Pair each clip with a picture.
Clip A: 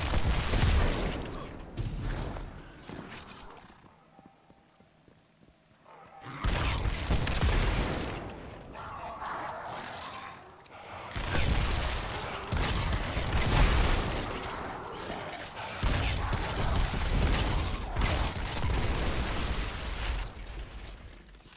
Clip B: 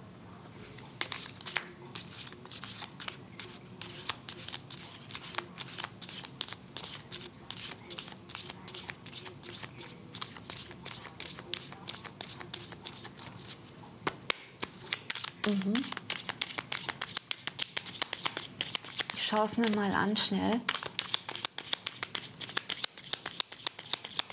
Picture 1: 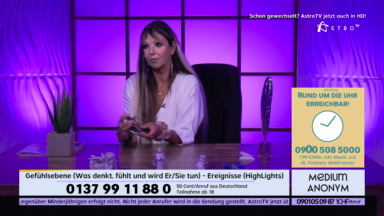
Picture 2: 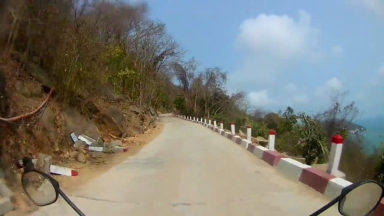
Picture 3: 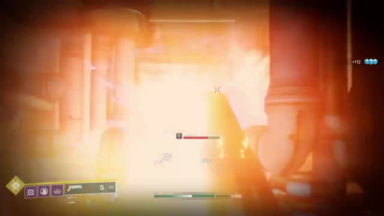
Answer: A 3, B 1